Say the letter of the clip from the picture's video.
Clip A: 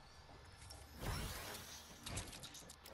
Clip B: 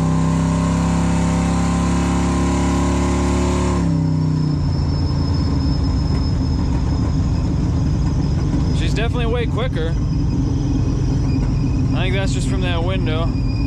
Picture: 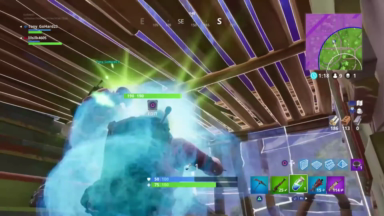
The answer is A